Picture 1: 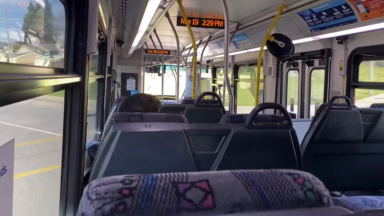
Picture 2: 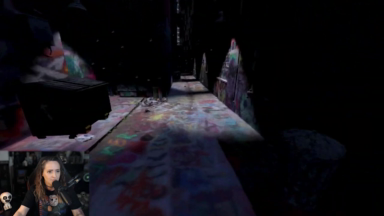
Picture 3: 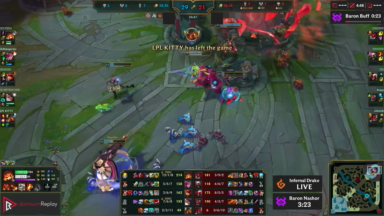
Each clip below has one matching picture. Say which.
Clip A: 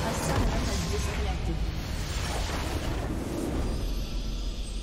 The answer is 3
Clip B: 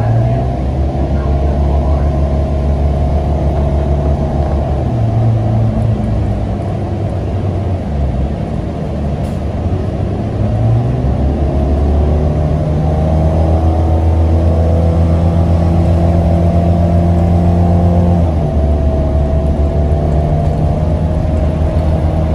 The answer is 1